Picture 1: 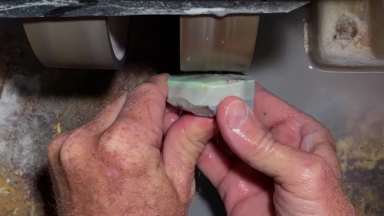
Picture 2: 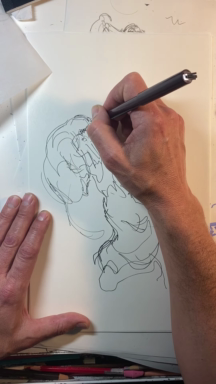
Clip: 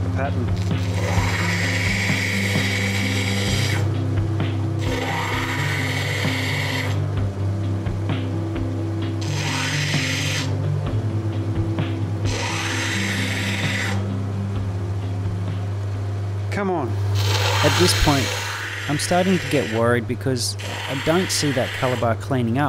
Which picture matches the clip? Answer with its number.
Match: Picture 1